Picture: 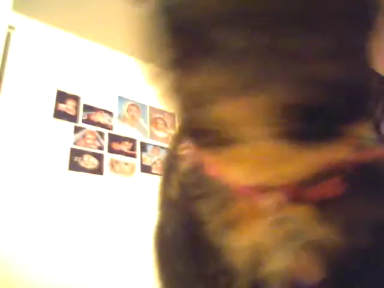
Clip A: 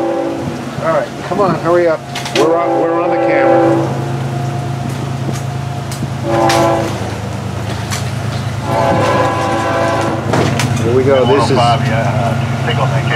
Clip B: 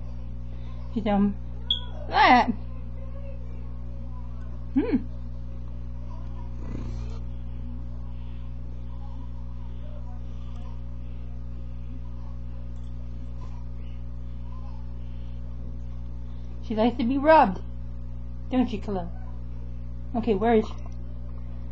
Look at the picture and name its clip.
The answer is B